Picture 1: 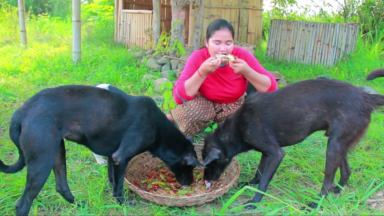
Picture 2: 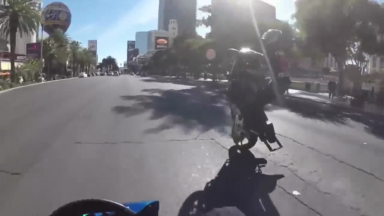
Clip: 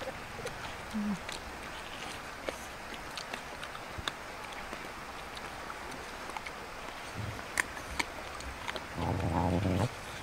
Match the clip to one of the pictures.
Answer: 1